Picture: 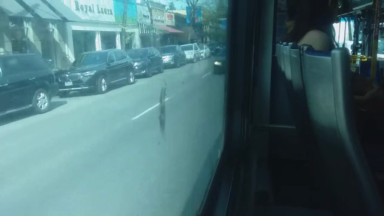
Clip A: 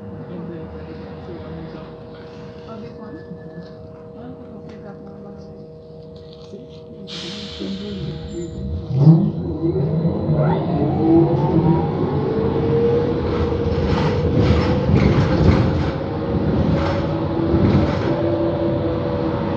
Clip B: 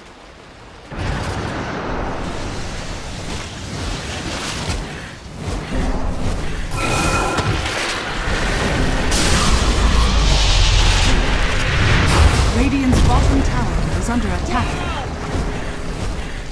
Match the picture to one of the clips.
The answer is A